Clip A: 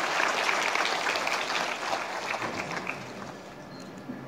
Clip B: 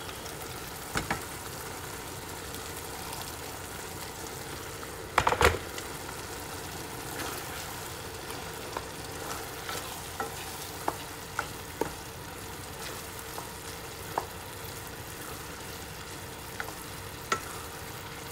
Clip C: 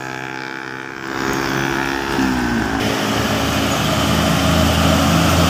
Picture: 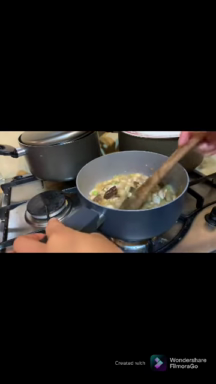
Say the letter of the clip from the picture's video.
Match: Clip B